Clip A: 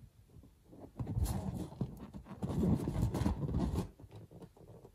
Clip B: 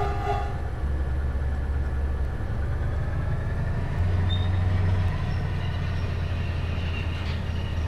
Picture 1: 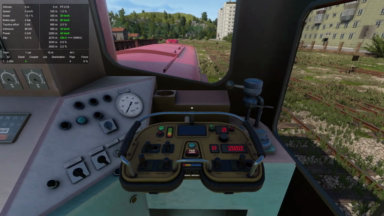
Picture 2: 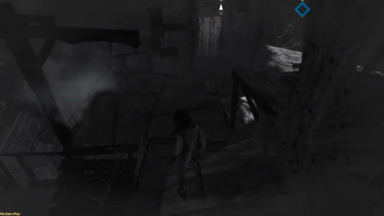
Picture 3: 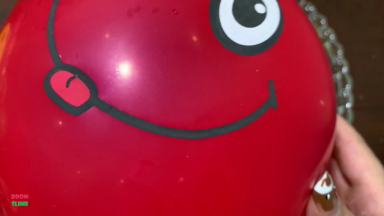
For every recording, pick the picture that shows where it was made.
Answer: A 3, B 1